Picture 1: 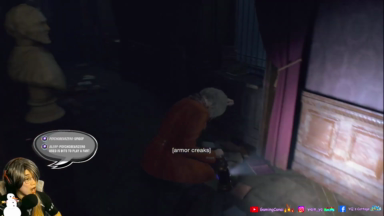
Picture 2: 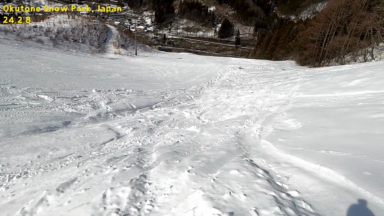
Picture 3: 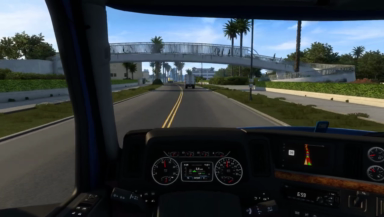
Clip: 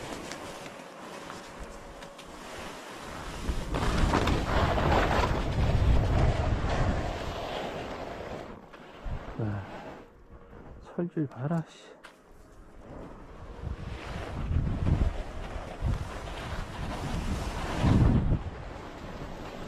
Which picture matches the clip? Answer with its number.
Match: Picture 2